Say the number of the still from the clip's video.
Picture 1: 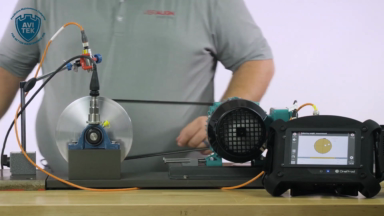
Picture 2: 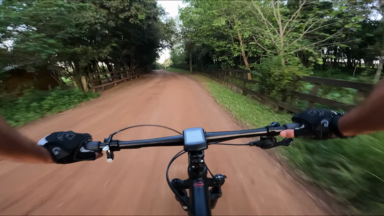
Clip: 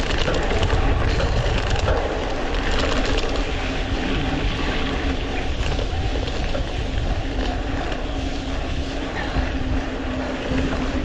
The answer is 2